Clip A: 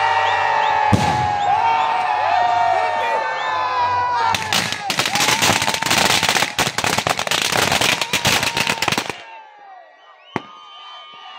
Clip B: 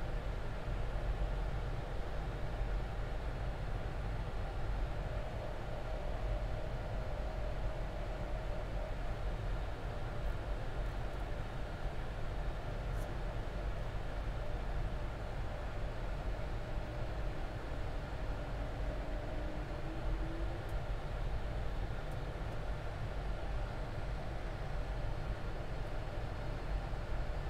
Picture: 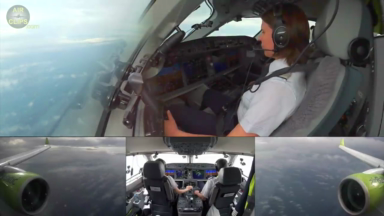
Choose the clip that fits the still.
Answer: B